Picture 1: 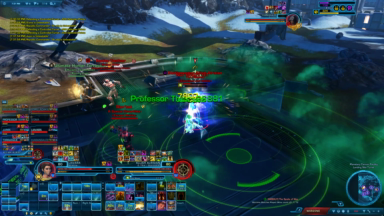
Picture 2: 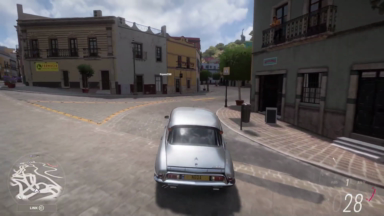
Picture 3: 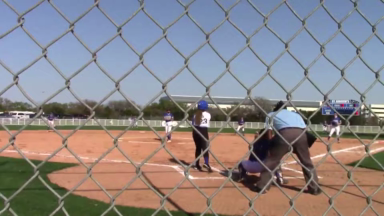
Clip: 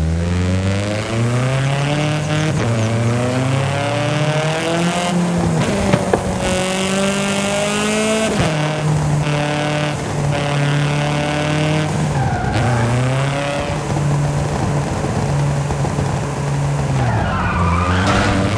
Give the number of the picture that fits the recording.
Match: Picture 2